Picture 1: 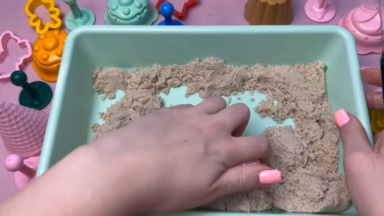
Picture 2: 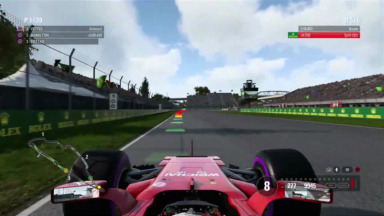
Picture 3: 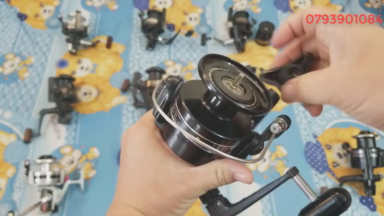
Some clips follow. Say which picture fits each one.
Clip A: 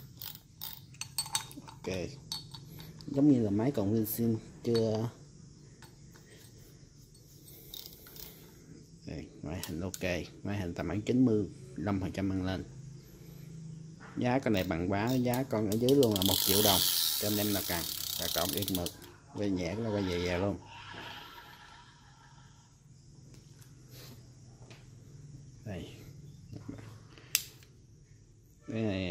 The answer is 3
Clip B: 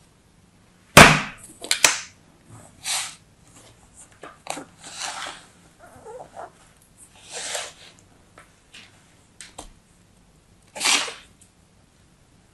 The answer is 1